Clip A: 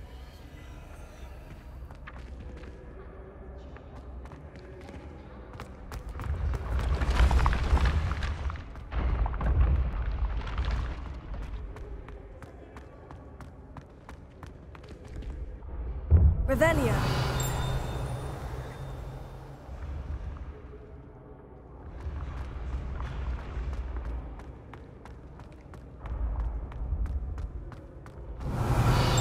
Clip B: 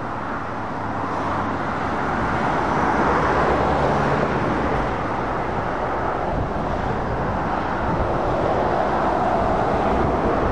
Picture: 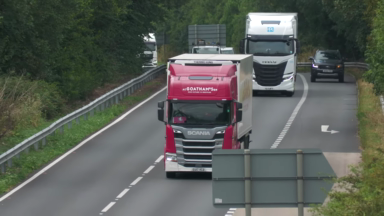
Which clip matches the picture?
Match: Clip B